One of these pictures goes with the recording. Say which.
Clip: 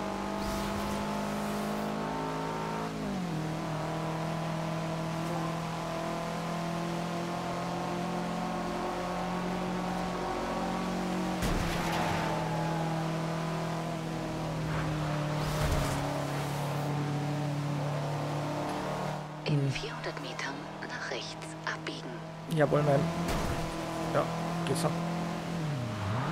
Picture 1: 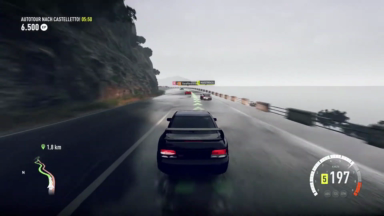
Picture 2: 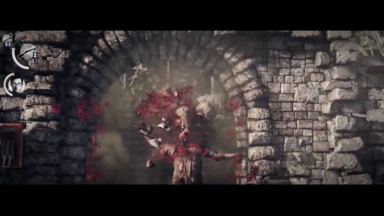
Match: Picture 1